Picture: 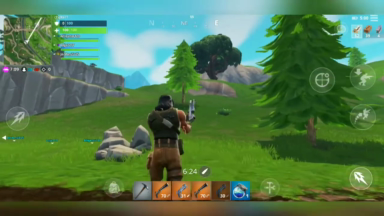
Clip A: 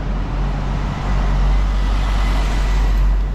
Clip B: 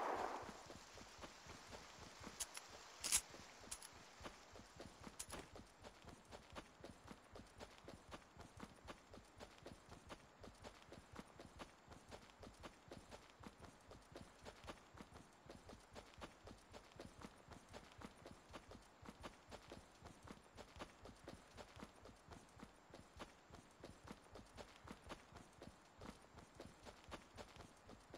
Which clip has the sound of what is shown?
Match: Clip B